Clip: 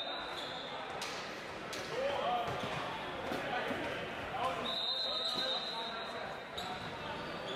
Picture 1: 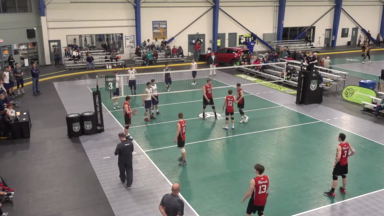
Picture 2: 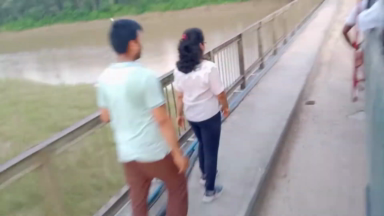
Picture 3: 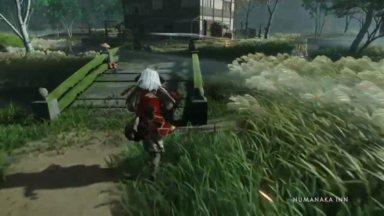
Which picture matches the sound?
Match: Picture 1